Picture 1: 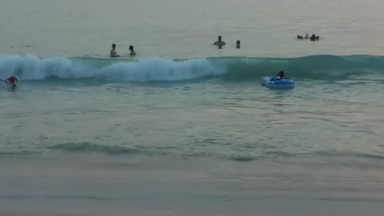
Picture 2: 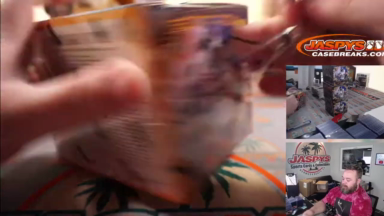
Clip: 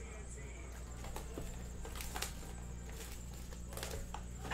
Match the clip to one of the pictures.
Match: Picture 2